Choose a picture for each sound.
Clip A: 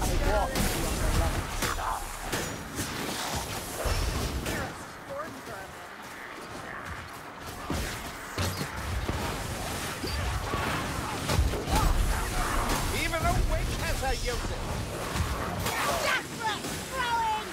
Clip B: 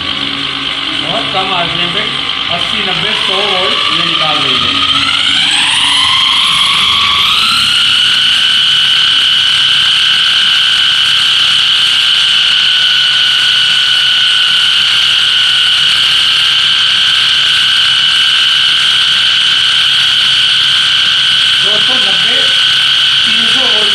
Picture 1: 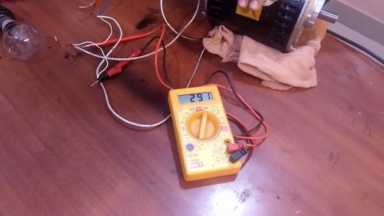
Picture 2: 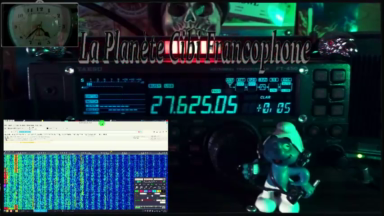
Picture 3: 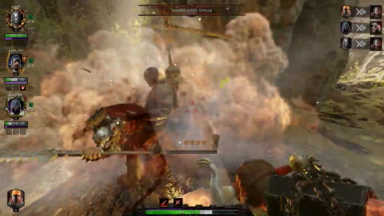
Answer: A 3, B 1